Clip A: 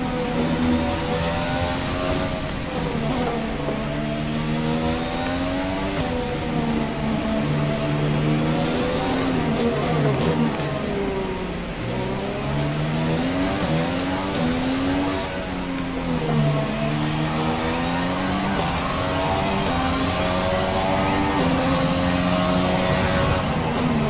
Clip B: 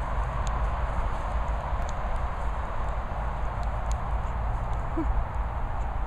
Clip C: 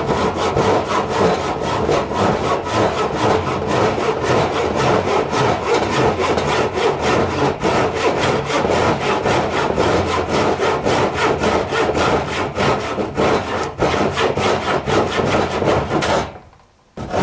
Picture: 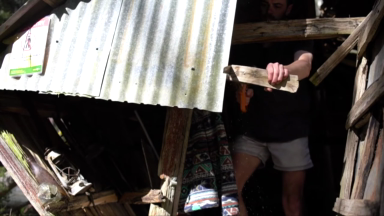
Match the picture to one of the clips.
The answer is C